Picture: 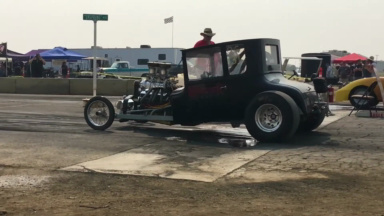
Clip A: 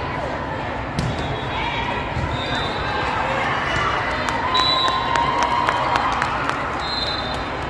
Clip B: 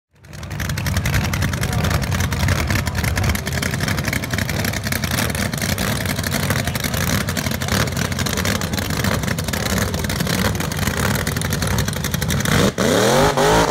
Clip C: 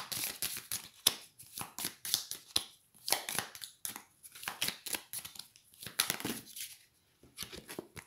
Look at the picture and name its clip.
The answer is B